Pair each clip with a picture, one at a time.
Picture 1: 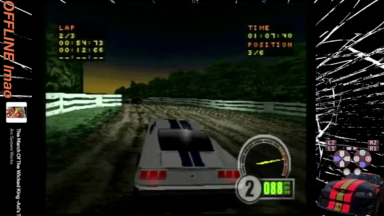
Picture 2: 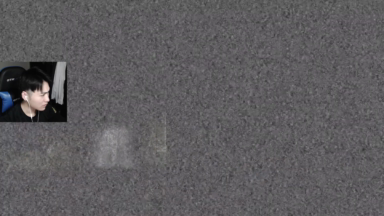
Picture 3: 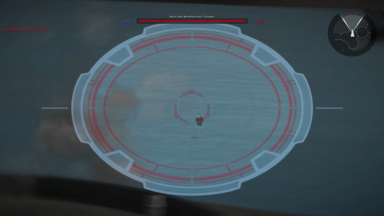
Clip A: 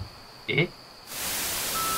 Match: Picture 2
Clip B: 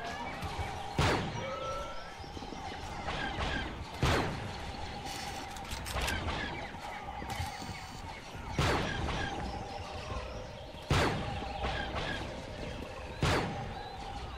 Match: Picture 3